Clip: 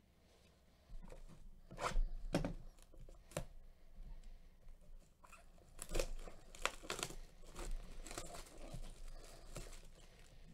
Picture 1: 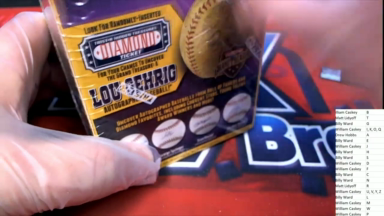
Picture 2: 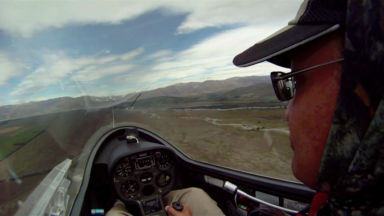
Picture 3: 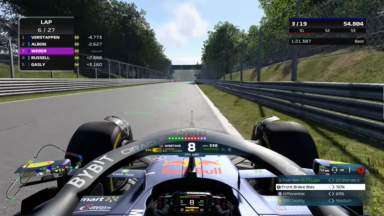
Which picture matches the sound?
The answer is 1